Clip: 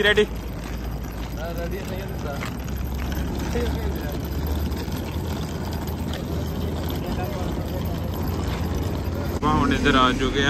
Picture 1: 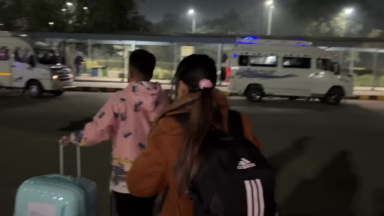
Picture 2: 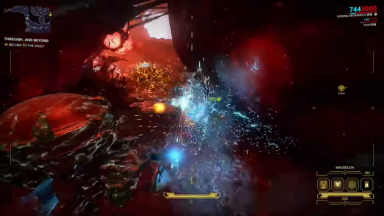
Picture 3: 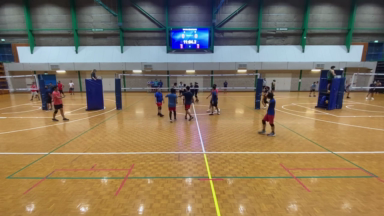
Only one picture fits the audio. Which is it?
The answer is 1